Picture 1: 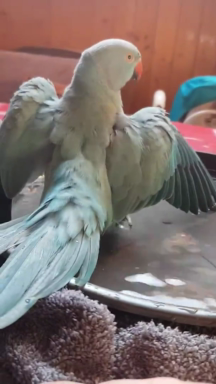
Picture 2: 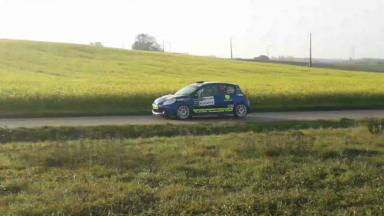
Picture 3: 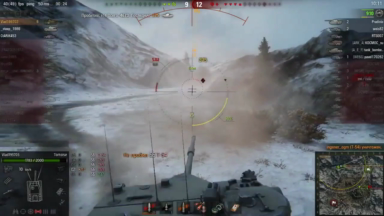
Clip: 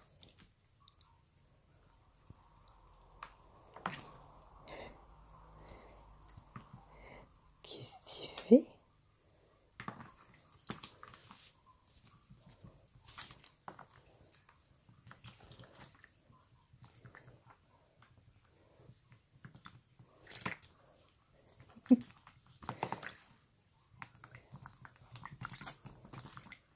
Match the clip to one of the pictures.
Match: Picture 1